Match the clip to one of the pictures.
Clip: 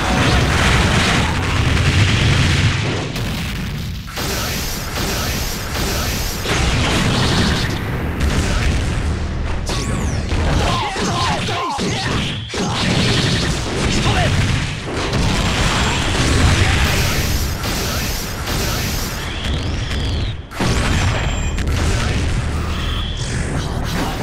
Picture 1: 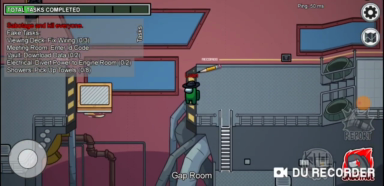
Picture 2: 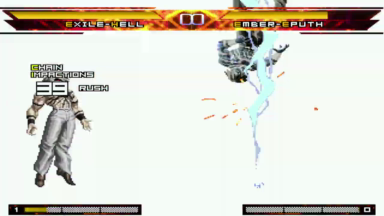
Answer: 2